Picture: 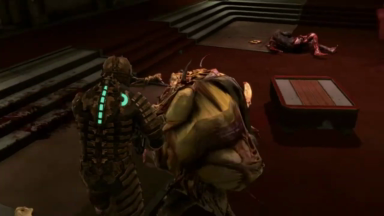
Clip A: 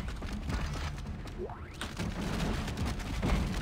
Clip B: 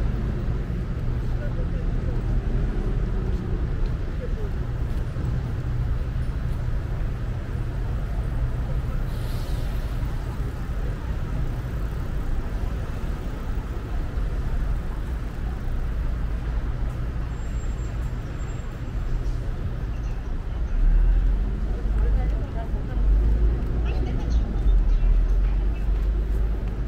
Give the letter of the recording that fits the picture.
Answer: A